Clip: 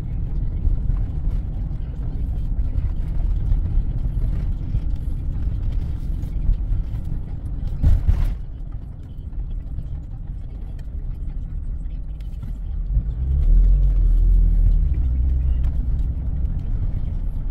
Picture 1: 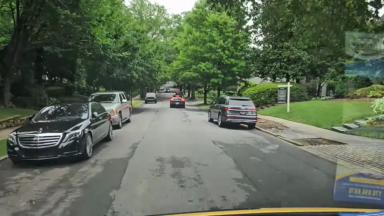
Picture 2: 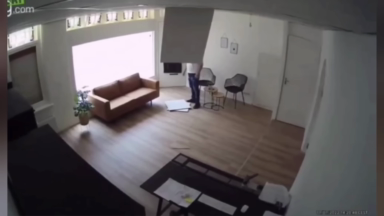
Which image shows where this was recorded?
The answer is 1